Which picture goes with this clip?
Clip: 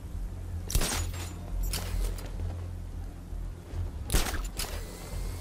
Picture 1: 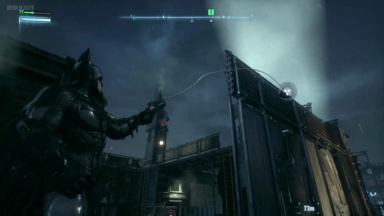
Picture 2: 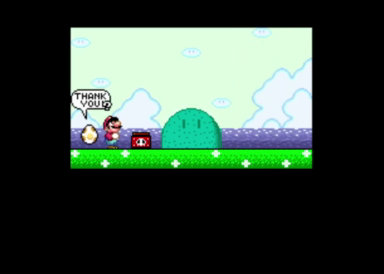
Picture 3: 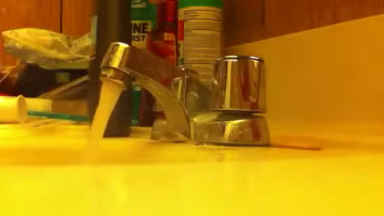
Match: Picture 1